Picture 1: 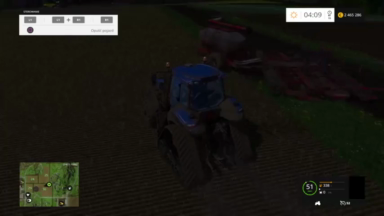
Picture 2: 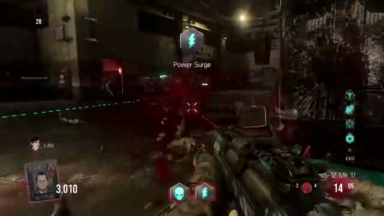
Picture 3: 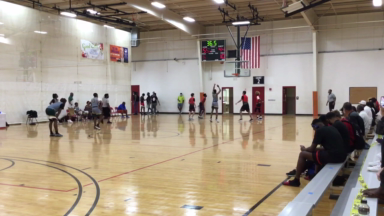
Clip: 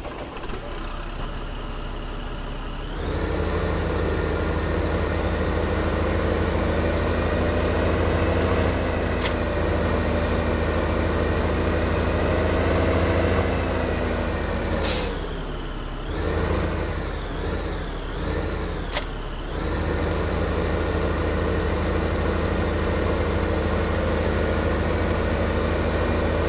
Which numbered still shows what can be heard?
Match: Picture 1